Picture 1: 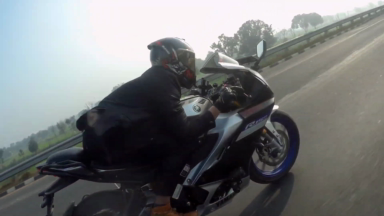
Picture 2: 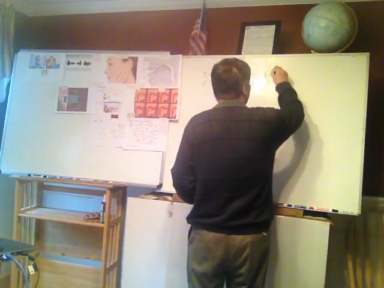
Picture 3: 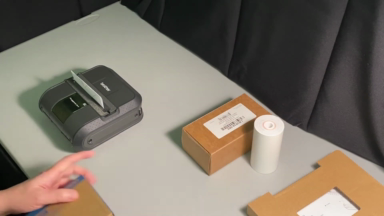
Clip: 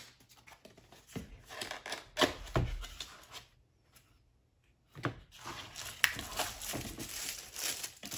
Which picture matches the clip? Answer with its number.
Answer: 3